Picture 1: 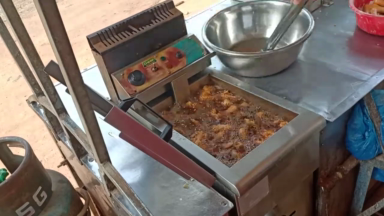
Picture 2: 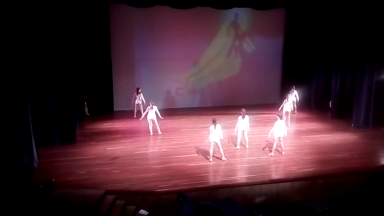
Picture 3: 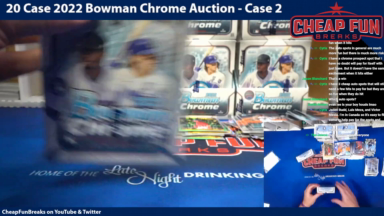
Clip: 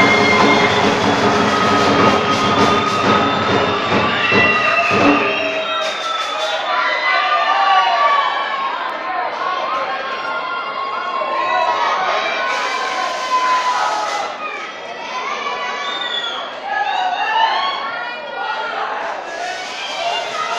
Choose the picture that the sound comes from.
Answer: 2